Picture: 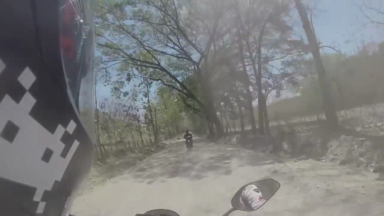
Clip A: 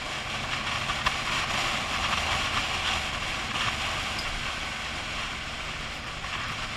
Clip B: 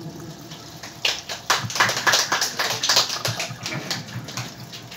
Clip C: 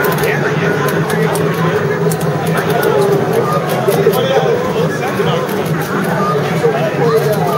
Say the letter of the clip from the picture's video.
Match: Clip A